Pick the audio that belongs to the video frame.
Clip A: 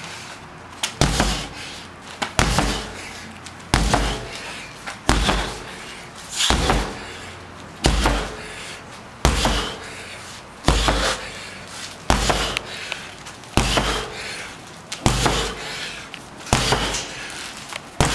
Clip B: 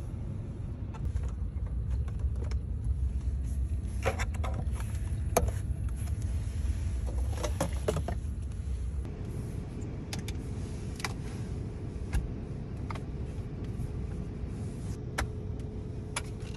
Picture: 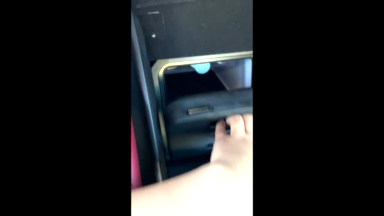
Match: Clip B